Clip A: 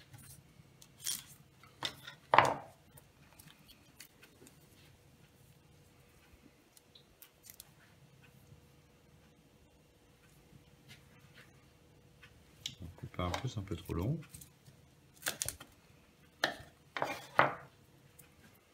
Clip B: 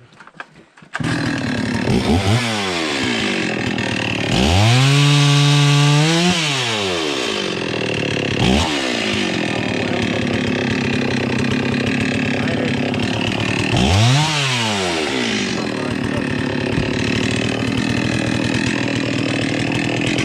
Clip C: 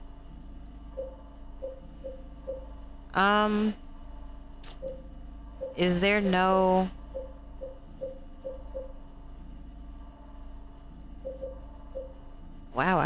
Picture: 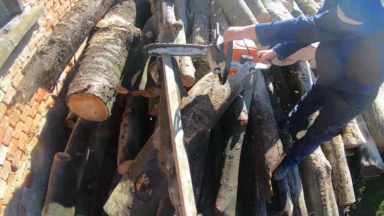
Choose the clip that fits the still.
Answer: B